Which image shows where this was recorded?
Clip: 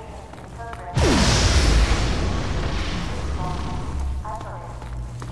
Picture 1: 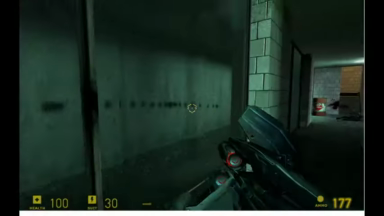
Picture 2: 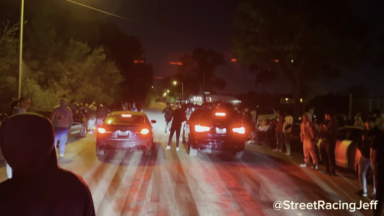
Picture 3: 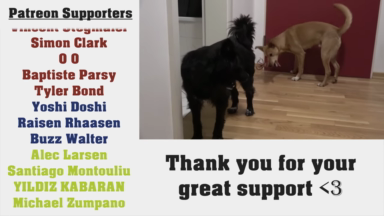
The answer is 1